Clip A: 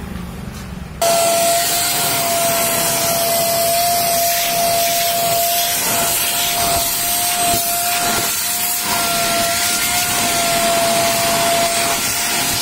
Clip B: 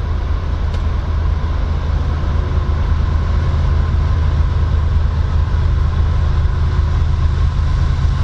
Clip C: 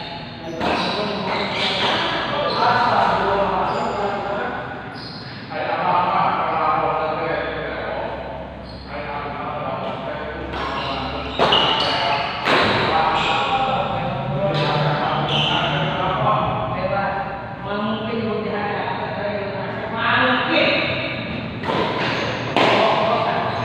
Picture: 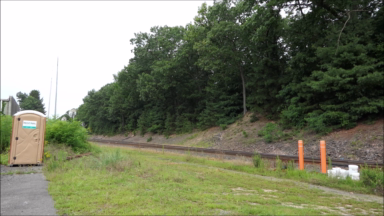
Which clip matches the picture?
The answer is B